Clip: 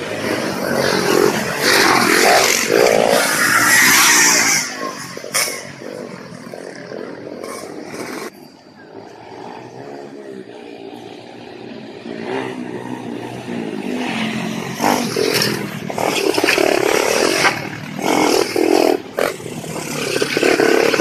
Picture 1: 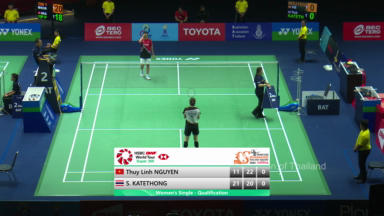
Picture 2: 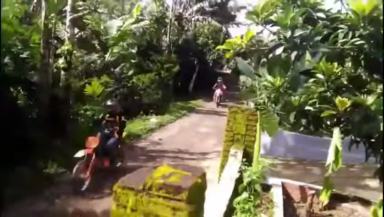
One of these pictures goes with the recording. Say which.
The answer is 2